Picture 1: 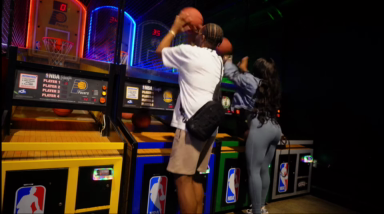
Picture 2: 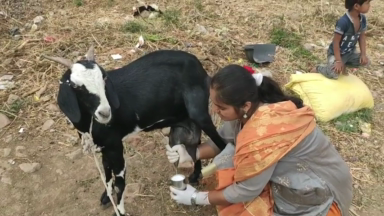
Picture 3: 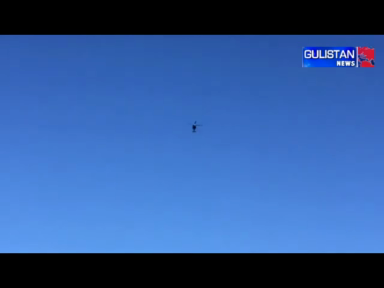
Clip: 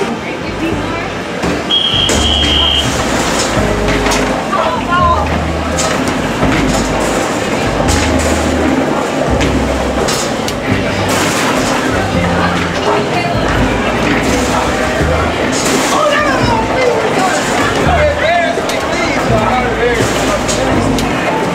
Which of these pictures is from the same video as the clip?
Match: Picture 1